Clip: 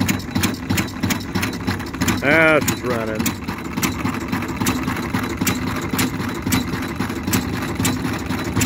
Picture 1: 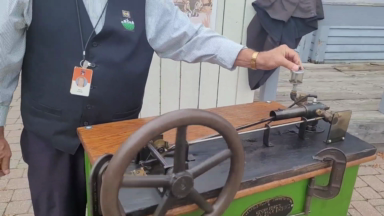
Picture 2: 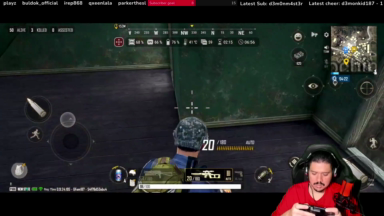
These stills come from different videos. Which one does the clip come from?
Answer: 1